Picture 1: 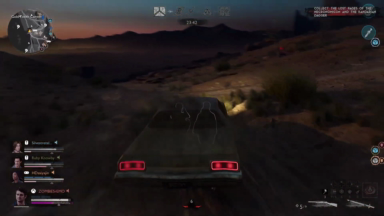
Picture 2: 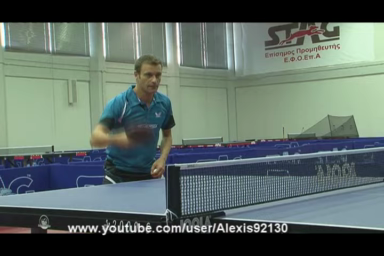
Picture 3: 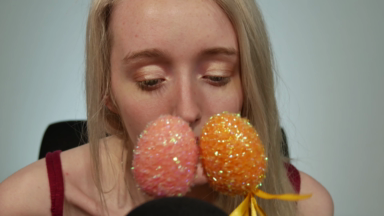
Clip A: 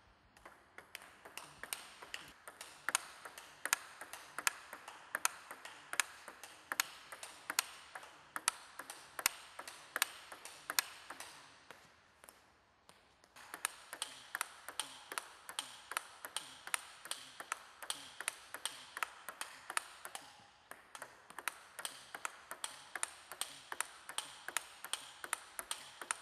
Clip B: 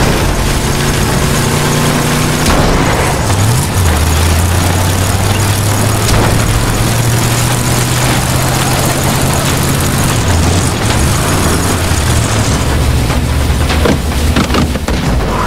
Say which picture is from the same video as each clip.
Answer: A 2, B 1